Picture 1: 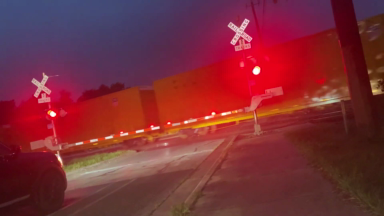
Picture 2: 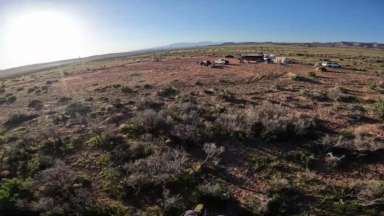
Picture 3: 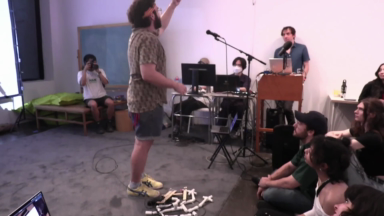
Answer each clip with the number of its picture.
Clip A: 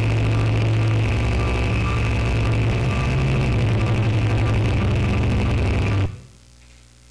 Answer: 3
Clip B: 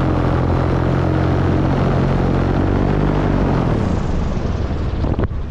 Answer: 2